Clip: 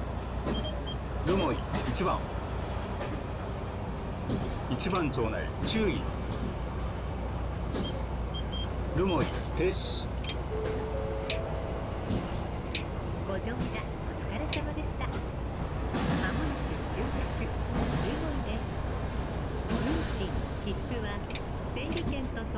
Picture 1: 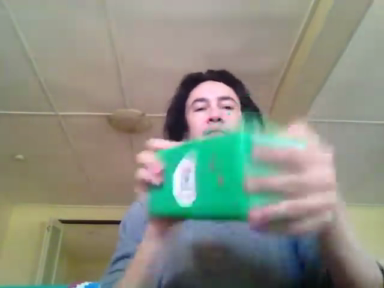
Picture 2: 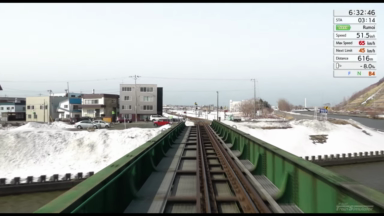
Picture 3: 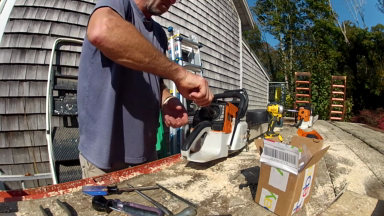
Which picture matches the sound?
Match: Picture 2